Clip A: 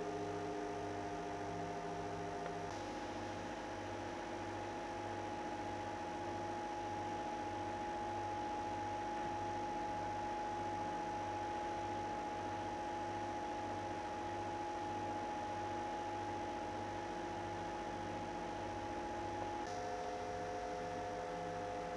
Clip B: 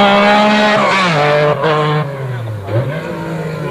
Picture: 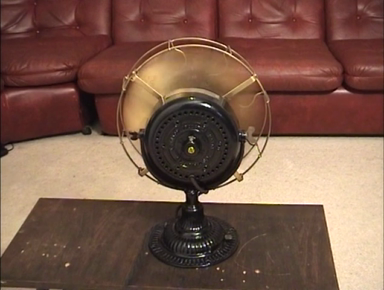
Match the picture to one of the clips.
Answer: A